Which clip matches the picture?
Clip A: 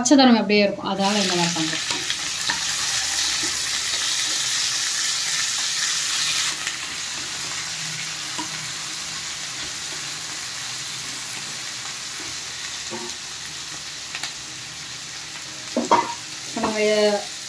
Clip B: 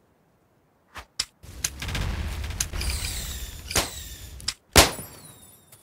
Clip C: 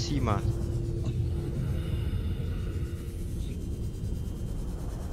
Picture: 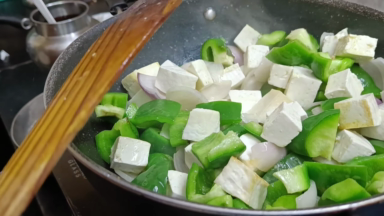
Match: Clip A